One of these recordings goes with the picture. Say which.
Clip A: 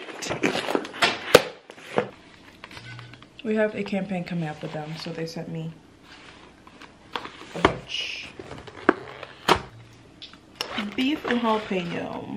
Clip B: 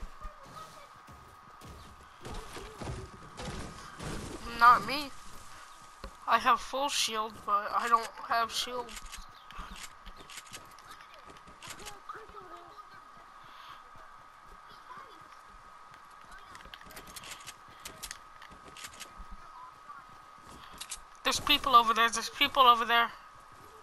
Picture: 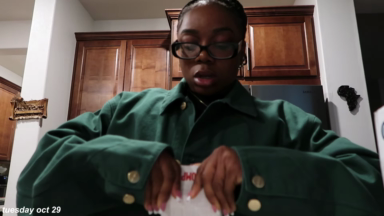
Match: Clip A